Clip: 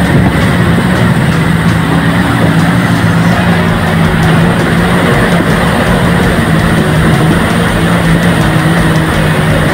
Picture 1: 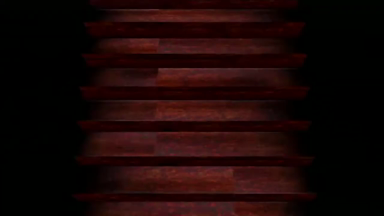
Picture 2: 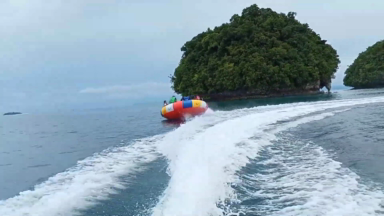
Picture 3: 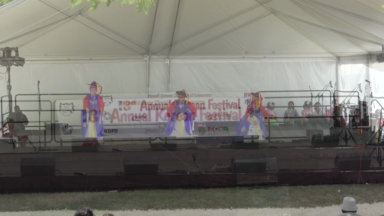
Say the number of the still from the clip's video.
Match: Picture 2